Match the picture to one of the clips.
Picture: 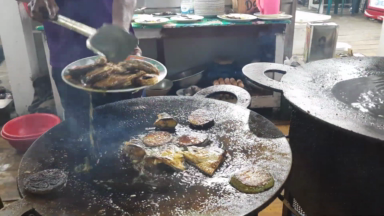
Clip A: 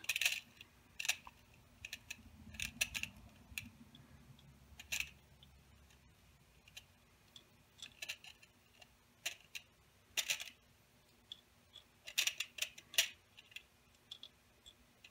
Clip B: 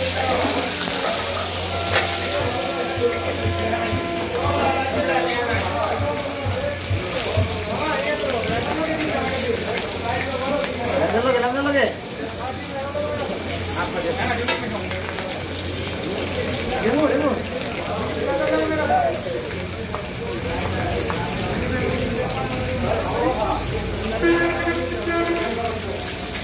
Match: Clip B